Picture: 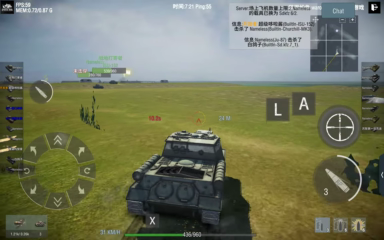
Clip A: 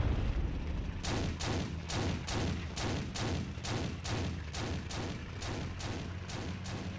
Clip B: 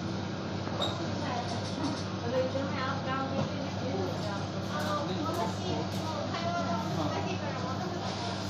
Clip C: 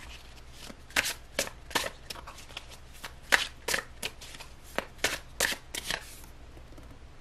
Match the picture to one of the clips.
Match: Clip A